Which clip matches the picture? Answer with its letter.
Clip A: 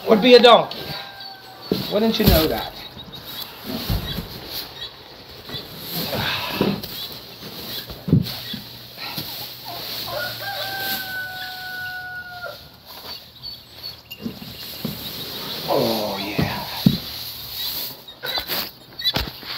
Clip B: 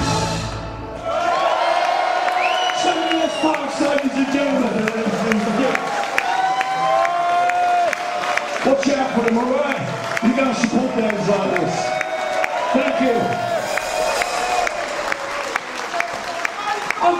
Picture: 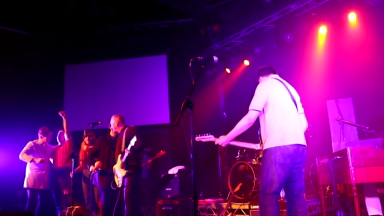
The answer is B